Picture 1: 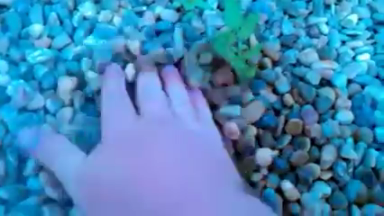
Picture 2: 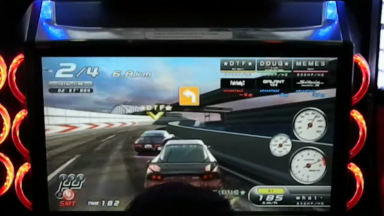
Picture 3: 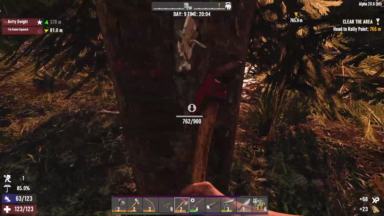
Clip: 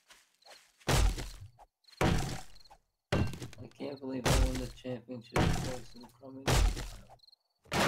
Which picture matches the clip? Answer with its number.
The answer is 3